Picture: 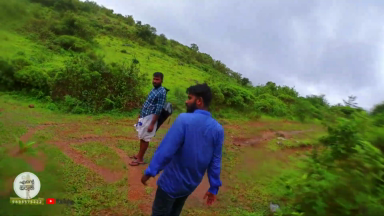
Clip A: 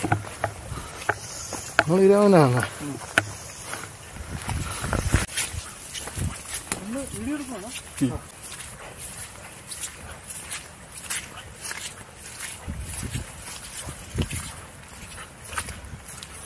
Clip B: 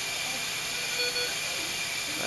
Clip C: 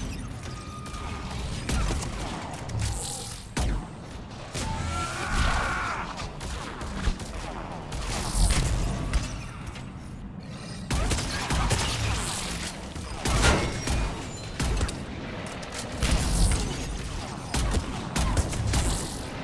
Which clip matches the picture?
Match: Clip A